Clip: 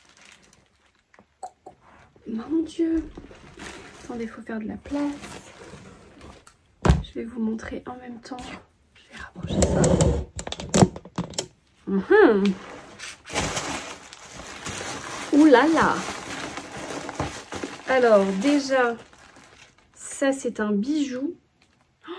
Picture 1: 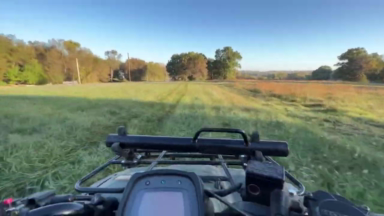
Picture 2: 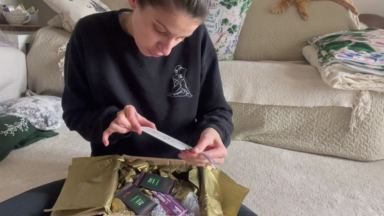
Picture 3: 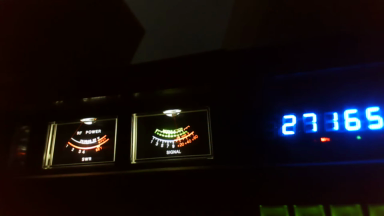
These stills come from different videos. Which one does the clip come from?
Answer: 2